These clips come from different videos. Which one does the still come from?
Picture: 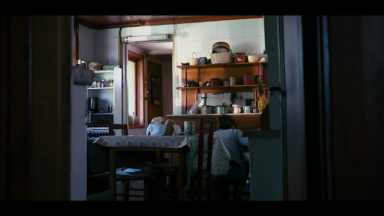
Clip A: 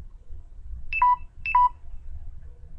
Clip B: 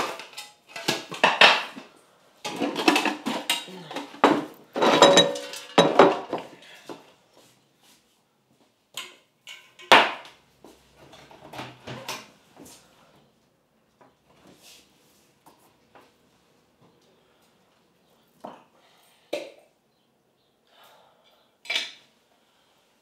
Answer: B